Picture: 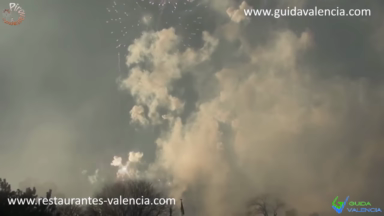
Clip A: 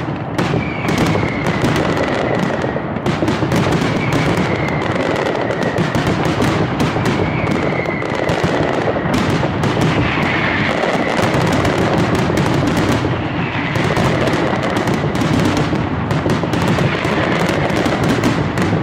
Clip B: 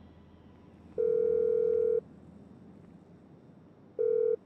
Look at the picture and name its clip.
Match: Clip A